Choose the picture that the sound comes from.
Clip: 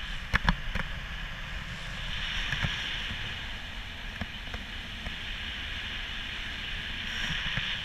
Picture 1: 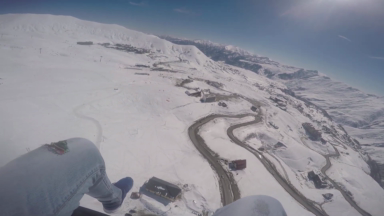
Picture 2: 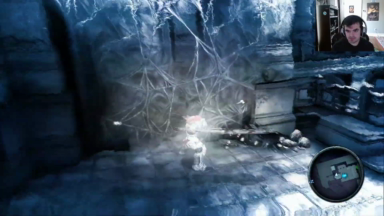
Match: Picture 1